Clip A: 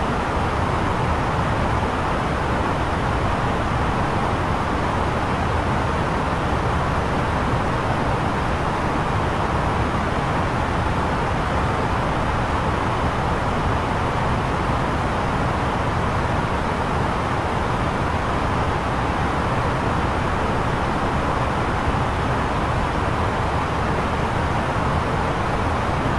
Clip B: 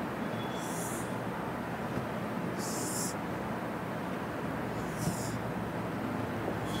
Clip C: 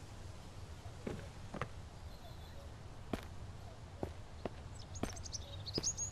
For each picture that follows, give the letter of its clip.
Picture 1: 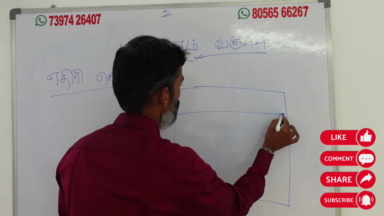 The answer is B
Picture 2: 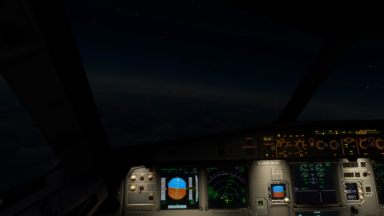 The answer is A